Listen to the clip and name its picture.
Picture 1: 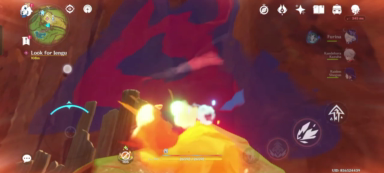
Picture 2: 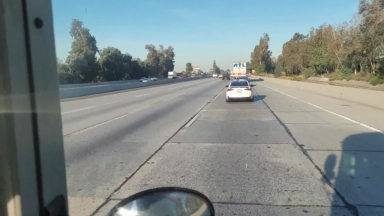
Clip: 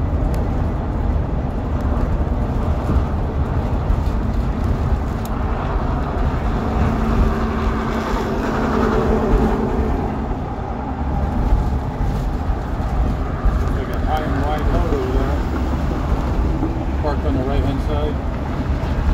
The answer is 2